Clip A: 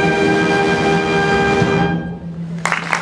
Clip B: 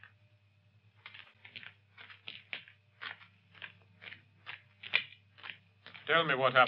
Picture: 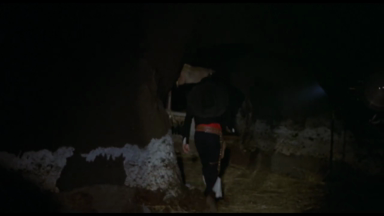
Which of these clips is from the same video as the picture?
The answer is B